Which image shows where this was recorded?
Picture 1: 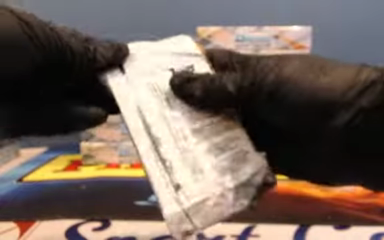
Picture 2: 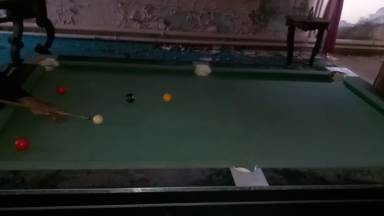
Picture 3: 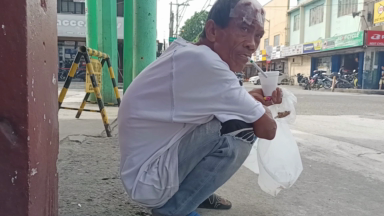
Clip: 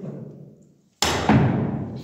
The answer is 2